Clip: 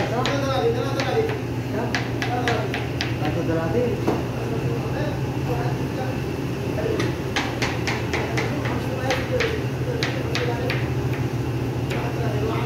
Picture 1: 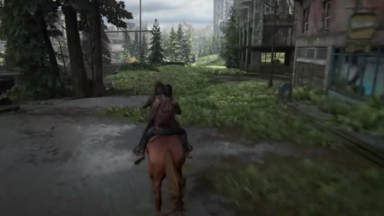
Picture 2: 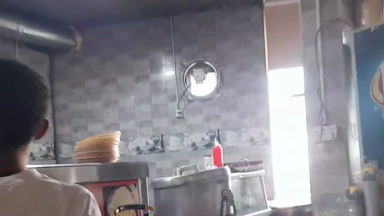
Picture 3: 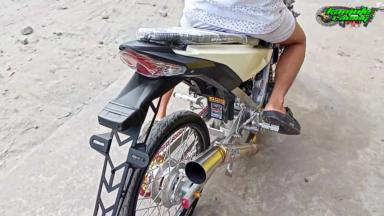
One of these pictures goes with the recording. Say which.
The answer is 2